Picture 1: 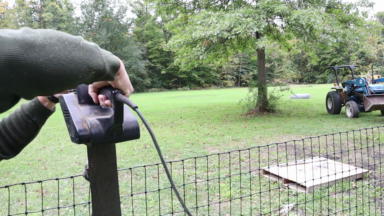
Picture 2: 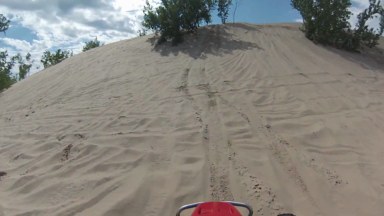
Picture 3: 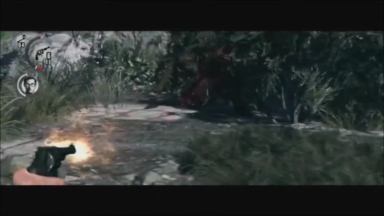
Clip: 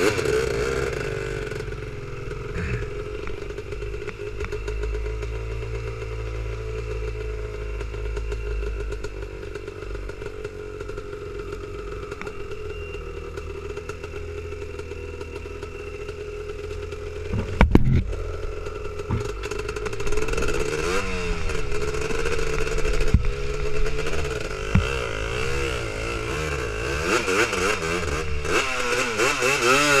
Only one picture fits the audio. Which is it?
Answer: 2